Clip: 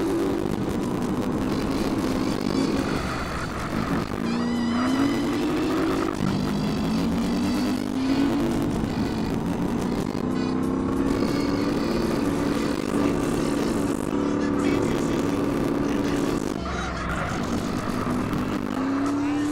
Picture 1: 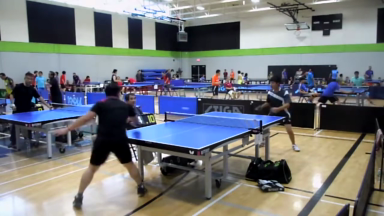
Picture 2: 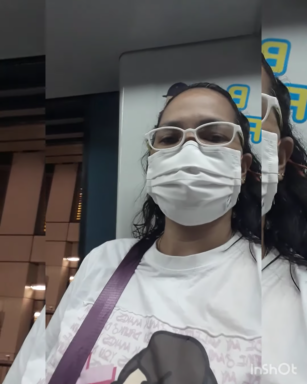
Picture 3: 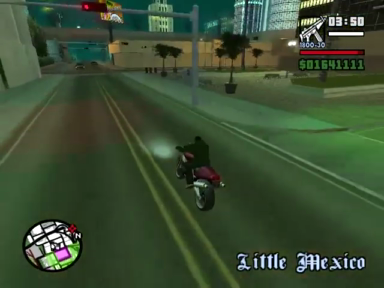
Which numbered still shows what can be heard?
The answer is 3